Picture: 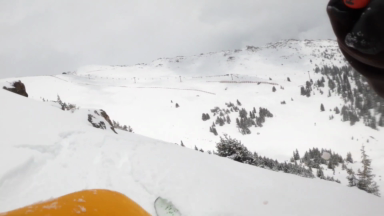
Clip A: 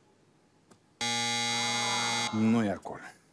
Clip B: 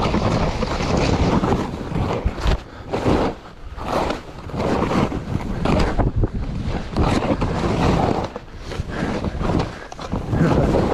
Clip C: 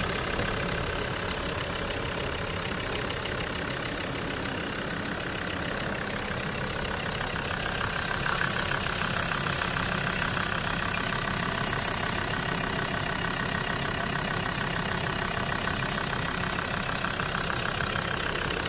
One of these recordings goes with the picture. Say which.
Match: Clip B